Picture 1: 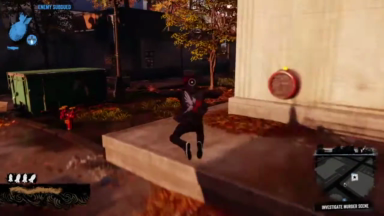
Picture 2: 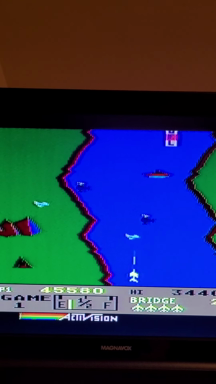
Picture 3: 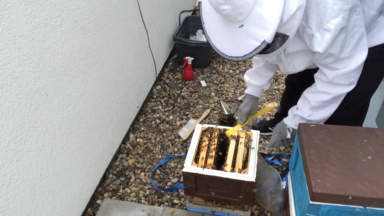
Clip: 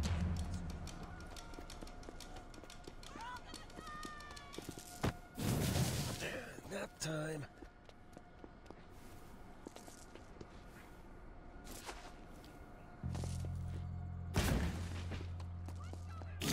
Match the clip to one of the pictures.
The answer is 1